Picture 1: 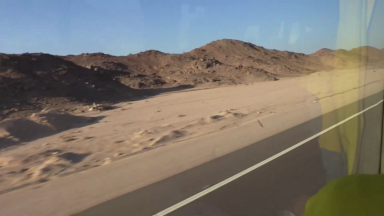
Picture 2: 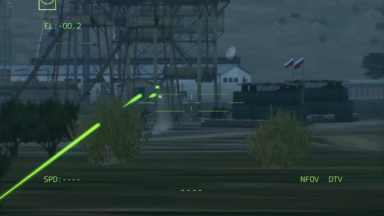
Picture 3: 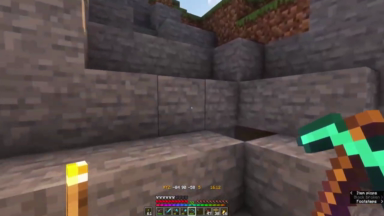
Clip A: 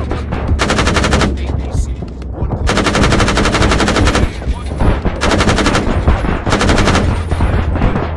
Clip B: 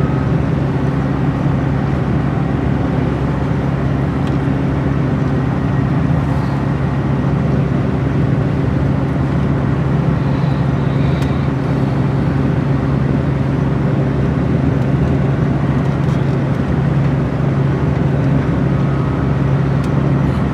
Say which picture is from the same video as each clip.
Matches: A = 2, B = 1